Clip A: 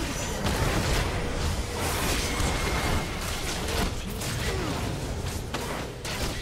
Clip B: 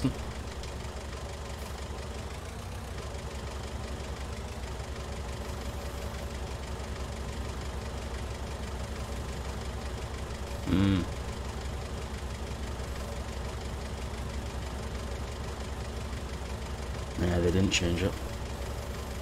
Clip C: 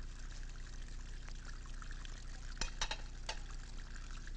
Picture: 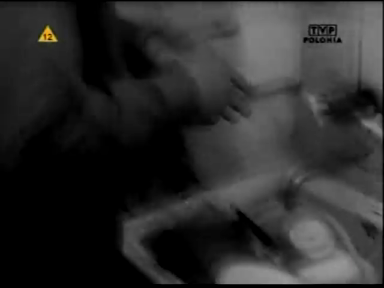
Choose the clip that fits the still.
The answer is C